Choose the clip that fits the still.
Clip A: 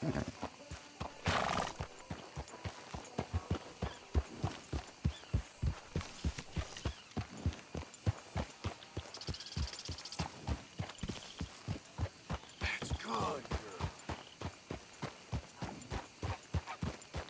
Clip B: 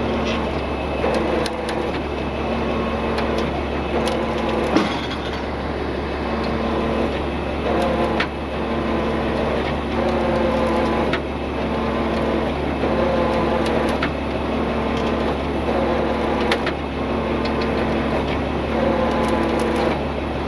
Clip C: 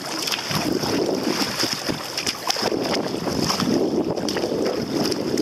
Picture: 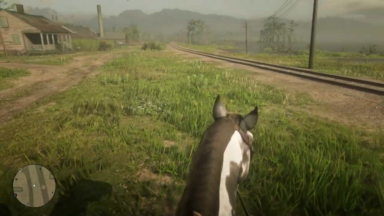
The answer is A